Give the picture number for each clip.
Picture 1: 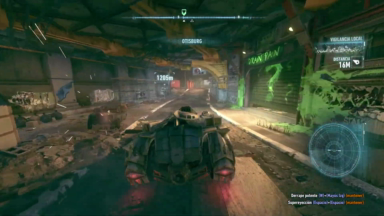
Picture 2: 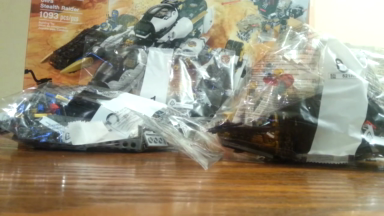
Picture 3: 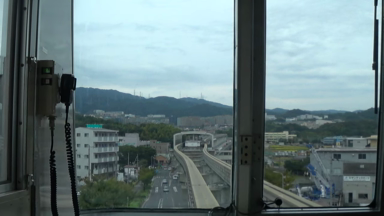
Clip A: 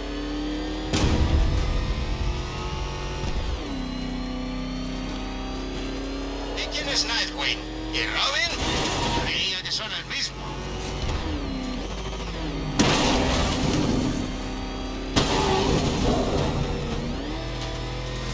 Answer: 1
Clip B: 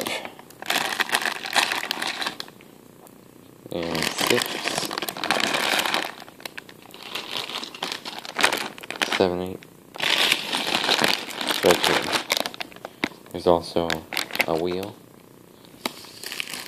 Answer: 2